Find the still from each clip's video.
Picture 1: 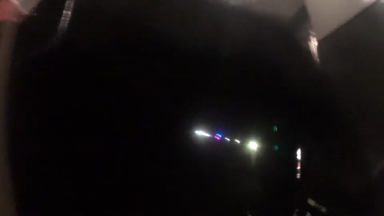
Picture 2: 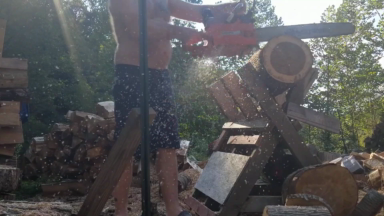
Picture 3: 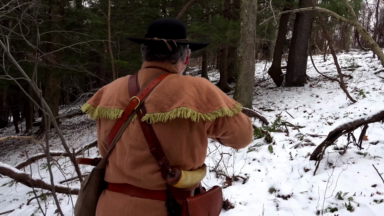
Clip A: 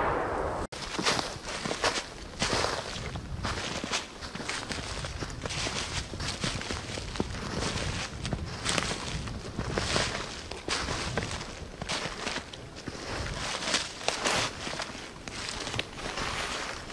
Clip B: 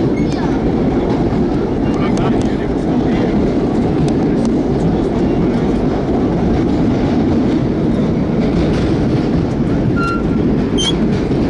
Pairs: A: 3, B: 1